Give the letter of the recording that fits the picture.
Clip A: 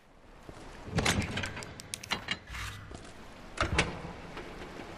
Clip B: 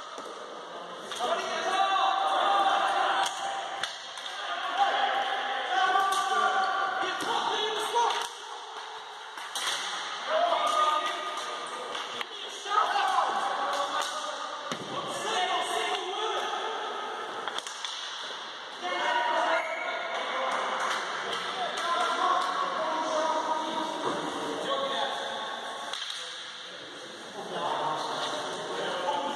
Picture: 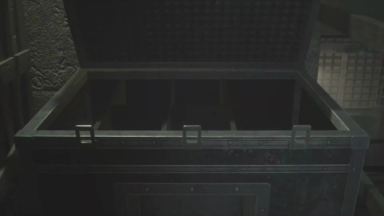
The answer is A